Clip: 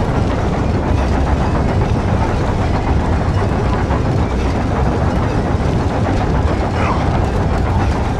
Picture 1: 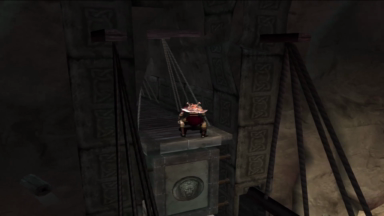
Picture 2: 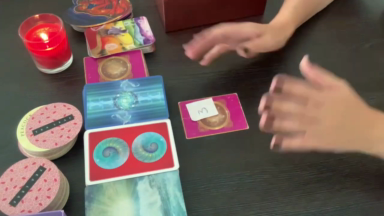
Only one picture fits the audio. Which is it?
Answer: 1